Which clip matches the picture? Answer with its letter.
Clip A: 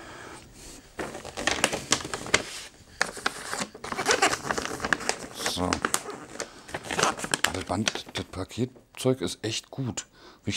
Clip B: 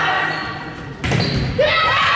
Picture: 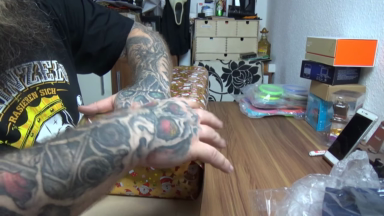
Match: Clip A